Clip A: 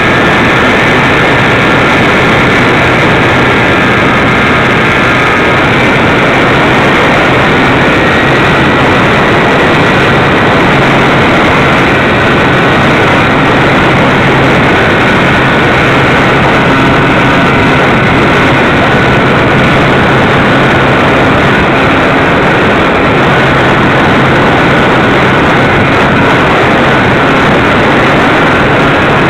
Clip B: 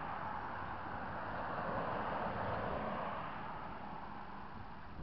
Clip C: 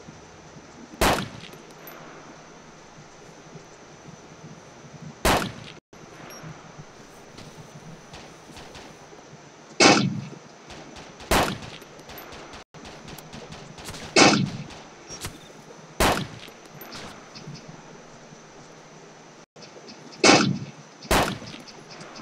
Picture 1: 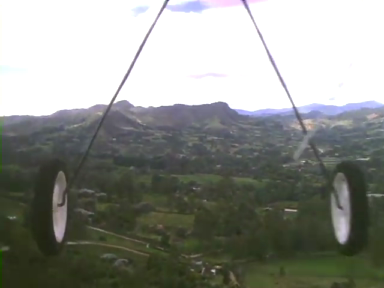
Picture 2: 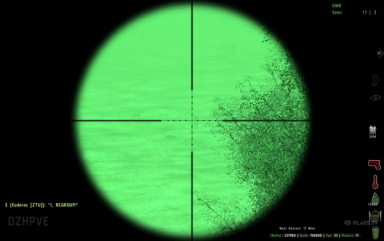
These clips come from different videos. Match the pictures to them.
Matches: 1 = A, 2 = C